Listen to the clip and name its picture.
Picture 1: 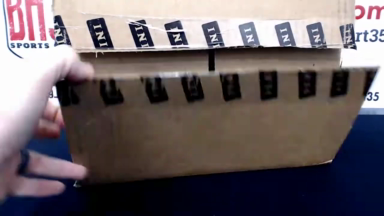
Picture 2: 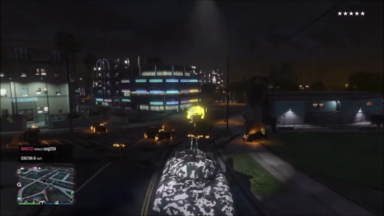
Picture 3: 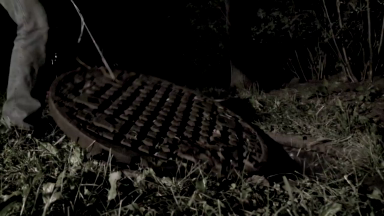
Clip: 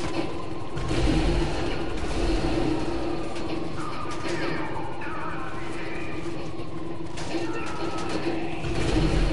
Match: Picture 2